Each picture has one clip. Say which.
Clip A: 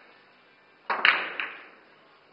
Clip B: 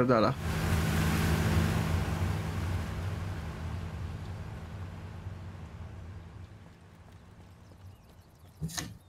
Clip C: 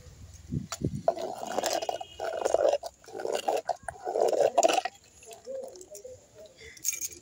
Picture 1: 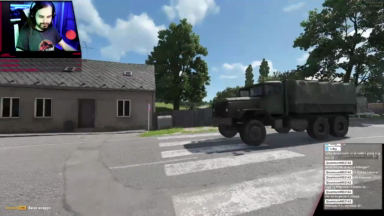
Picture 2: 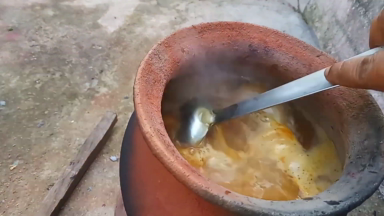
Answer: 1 B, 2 C